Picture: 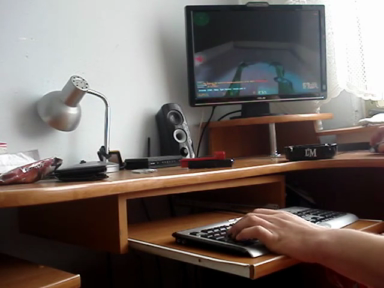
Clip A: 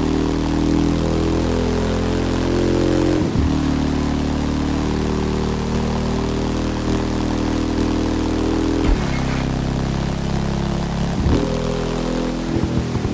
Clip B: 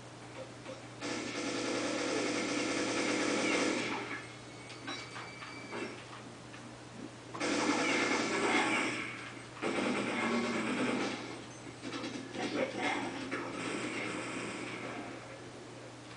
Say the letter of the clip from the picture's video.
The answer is B